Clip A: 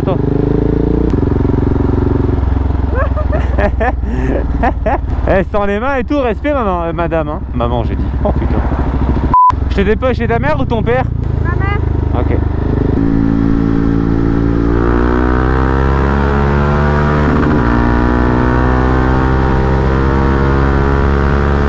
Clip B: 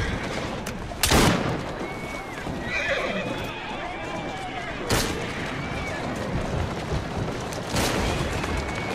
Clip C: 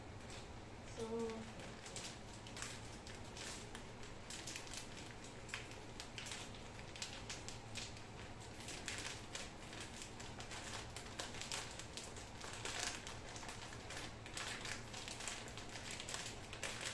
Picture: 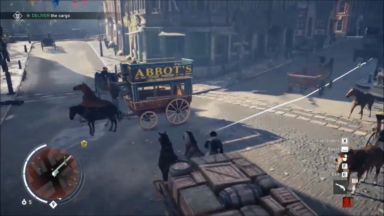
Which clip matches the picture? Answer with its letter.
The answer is B